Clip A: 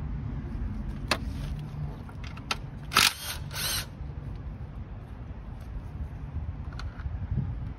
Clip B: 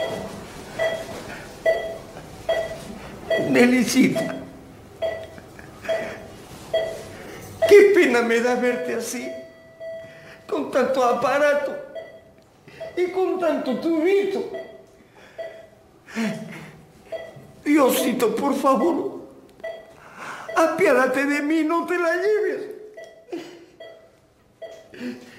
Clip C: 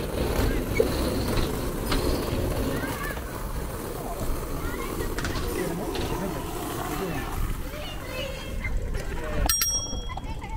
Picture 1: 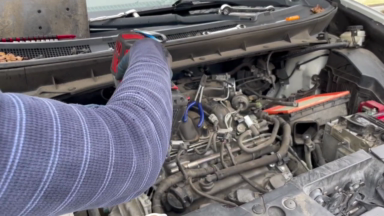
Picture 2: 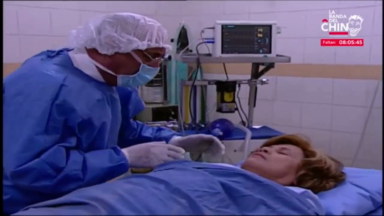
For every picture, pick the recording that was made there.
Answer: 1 A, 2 B